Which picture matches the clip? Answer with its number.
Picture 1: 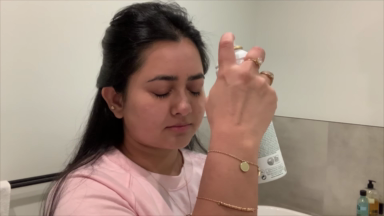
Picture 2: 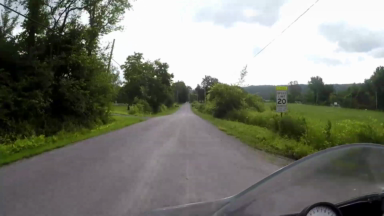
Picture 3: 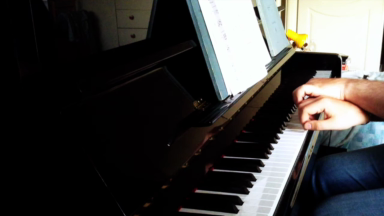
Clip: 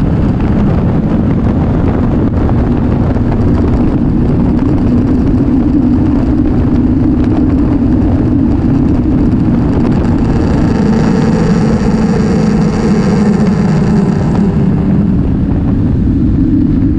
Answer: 2